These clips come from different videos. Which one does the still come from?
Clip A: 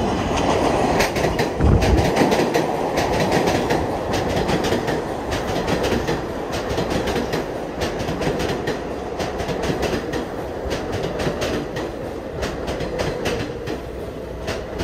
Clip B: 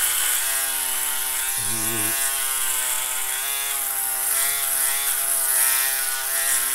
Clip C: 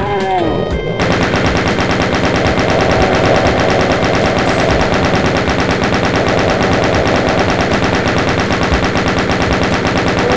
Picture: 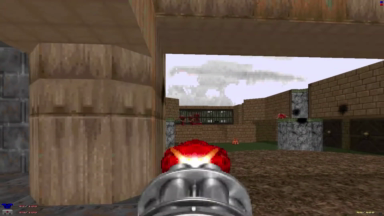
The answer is C